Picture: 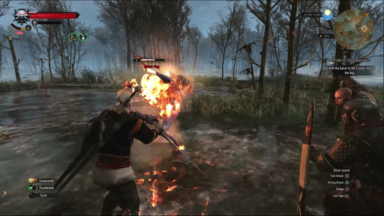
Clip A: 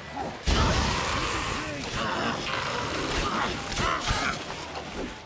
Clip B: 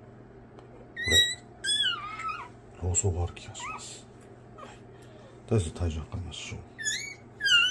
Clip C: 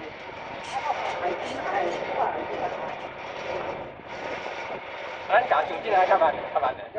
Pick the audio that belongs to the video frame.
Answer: A